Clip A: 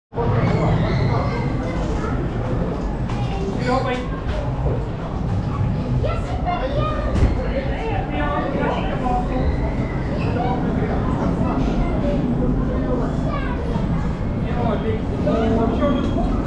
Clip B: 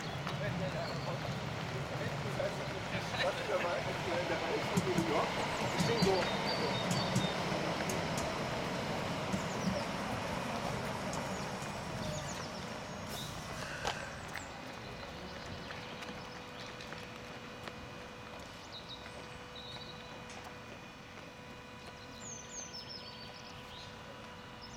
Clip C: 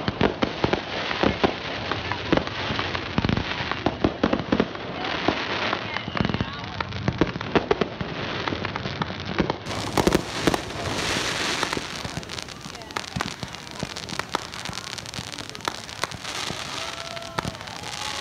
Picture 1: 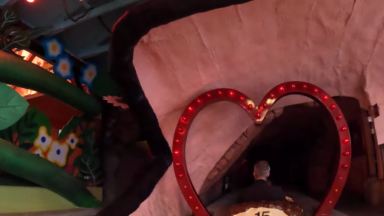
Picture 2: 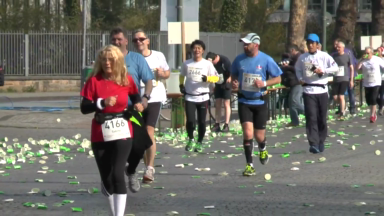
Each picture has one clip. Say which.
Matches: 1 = A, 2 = B